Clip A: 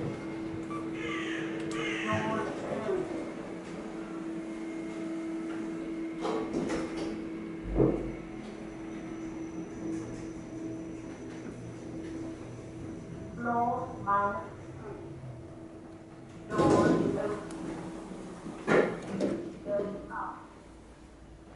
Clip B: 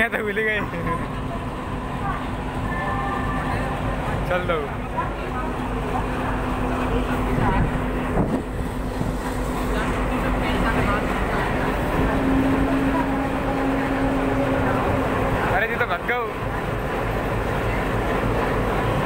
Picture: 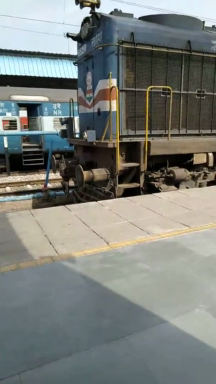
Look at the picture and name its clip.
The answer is B